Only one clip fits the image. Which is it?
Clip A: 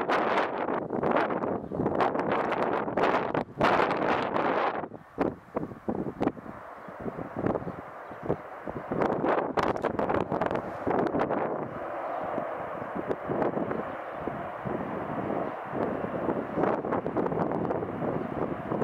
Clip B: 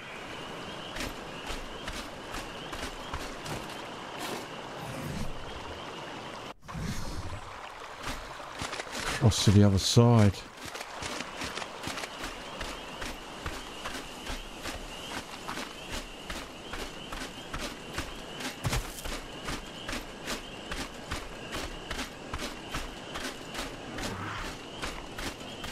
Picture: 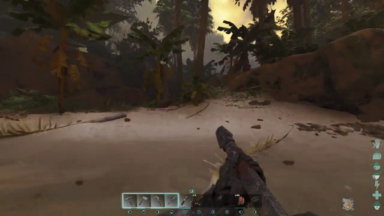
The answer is B